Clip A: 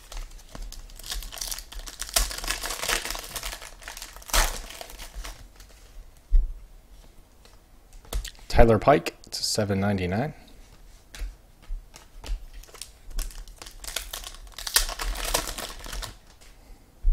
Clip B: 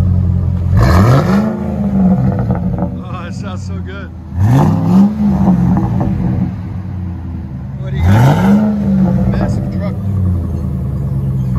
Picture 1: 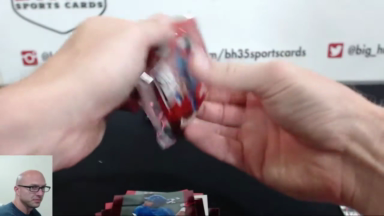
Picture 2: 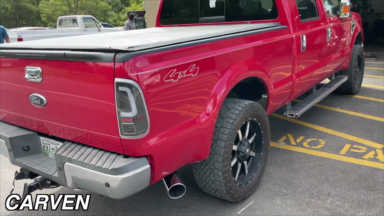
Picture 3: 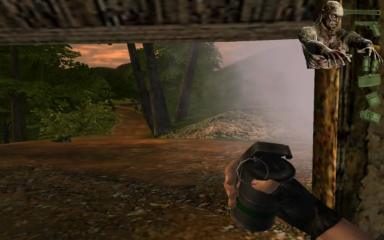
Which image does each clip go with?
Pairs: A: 1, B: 2